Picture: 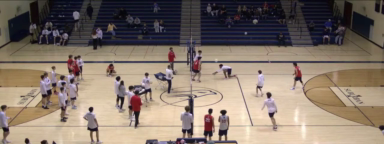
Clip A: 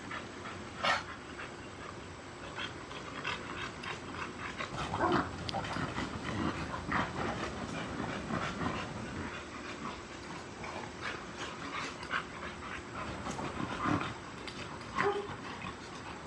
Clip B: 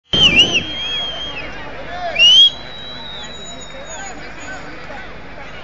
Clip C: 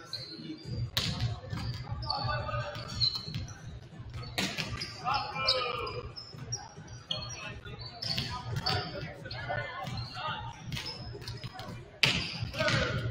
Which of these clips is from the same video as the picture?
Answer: C